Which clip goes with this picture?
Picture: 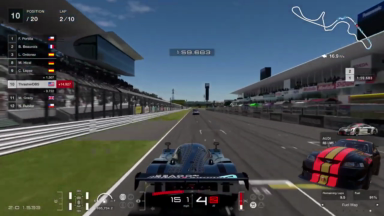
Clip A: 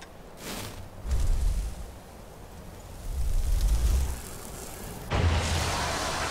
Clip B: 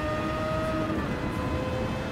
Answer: B